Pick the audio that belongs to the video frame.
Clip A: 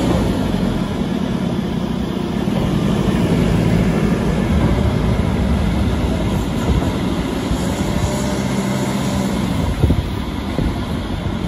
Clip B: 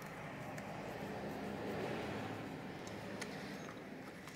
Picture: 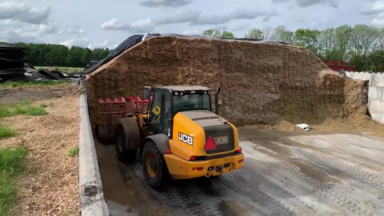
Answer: A